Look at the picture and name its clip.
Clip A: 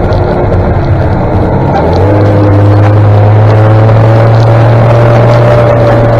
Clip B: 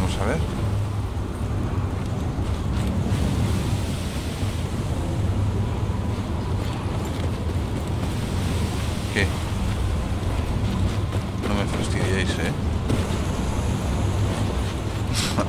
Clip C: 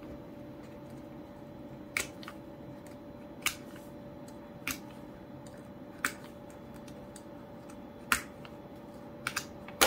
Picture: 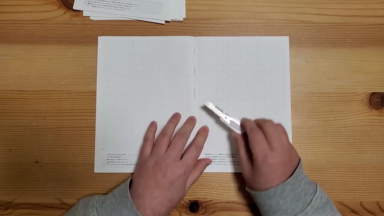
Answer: C